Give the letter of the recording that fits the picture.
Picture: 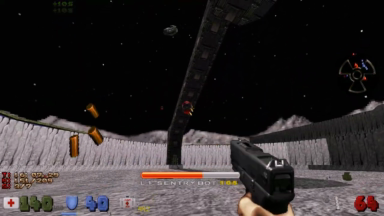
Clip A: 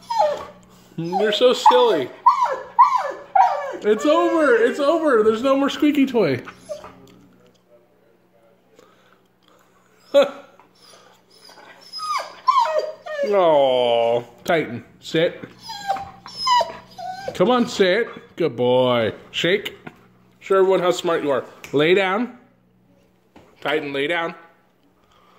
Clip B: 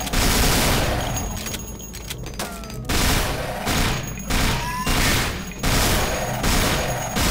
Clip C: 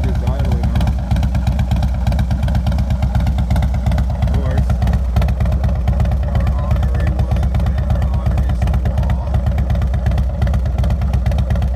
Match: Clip B